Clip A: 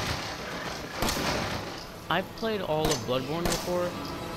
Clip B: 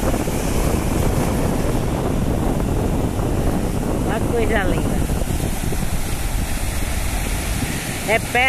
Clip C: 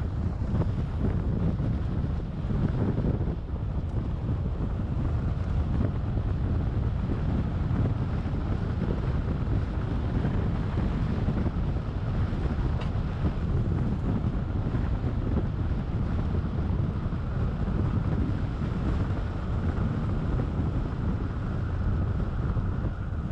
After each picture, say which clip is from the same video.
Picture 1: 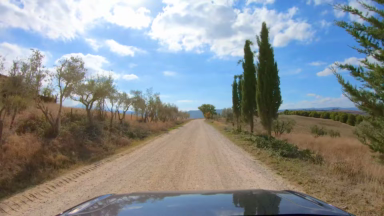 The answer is C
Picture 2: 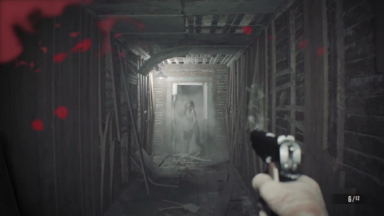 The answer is A